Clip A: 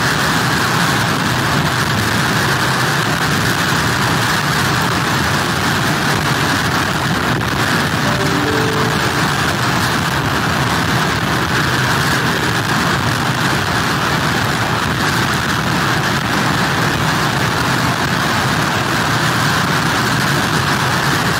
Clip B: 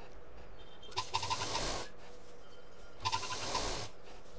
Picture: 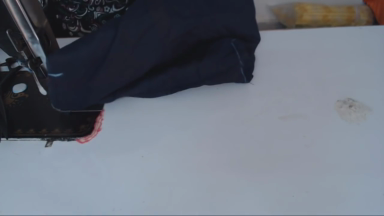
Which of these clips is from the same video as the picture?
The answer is B